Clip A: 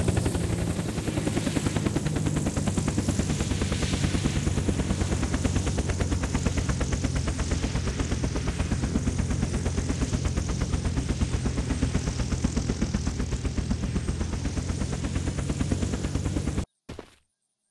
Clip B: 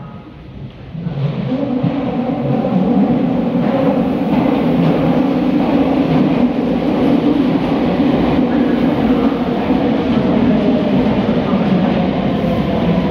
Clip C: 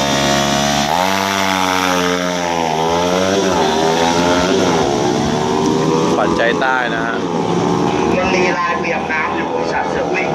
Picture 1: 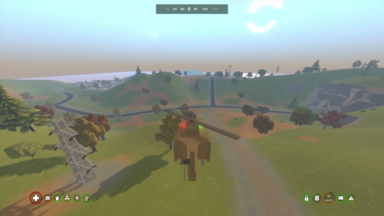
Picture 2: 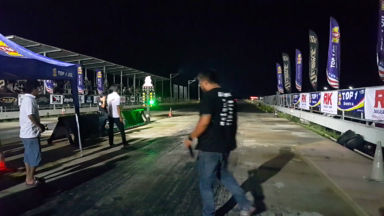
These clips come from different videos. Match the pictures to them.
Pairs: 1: A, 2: C